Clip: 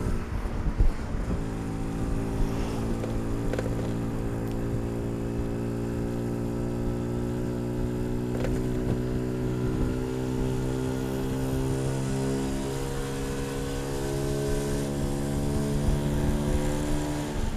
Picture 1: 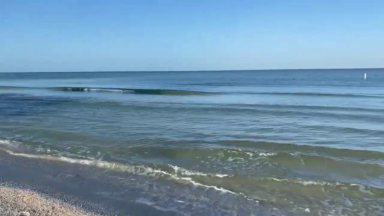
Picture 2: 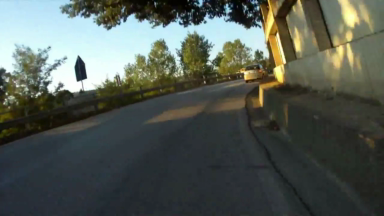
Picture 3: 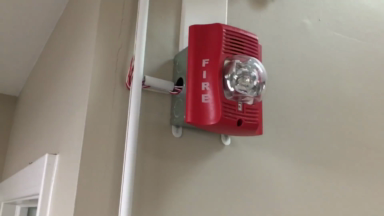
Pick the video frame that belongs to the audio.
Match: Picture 2